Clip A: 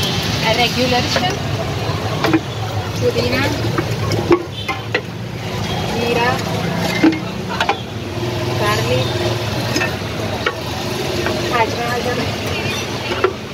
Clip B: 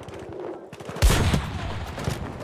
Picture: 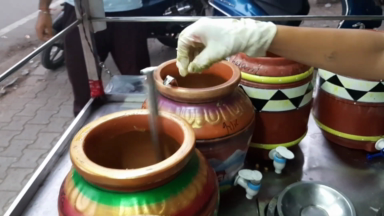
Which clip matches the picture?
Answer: A